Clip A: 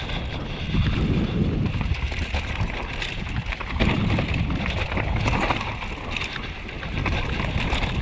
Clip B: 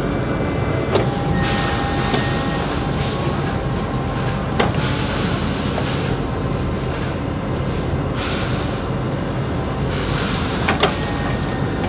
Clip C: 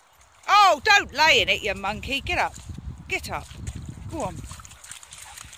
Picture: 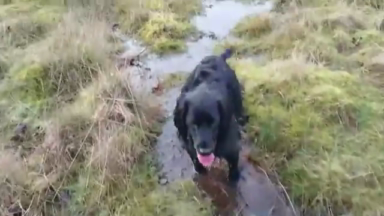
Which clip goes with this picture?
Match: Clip C